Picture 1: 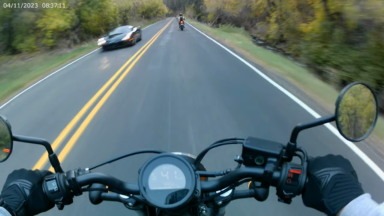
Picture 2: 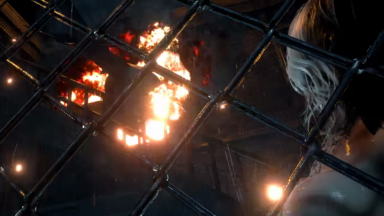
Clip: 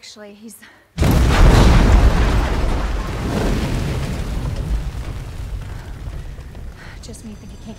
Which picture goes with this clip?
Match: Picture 2